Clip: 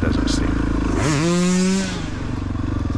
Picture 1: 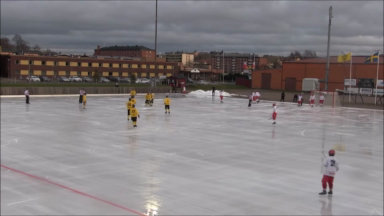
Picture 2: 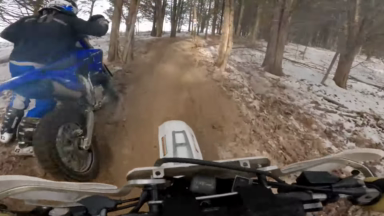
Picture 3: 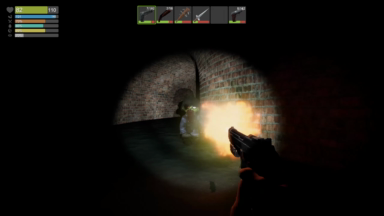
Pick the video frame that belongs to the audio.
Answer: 2